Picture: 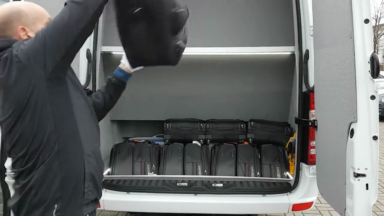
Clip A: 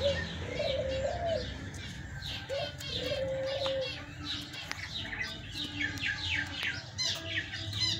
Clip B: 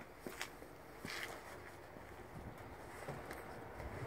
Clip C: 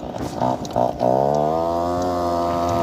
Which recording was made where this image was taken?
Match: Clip B